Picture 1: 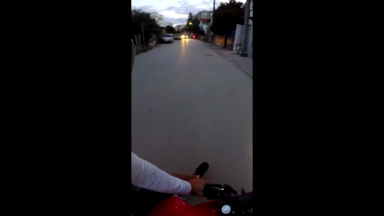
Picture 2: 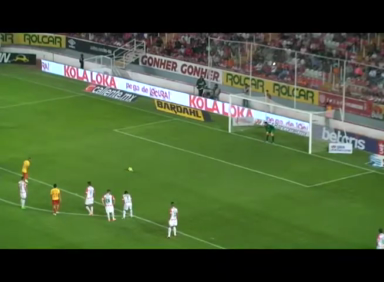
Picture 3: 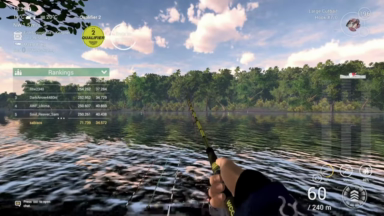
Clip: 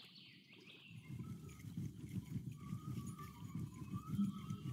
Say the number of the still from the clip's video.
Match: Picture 3